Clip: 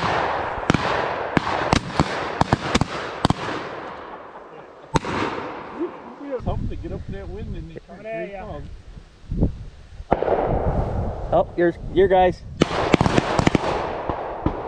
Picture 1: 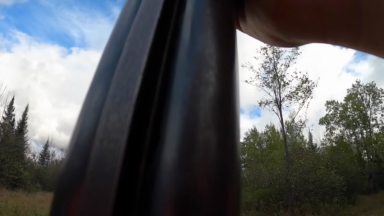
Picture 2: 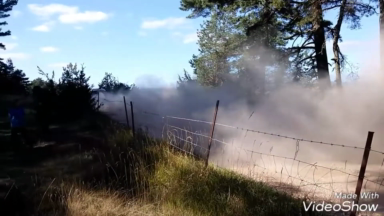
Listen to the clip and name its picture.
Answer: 1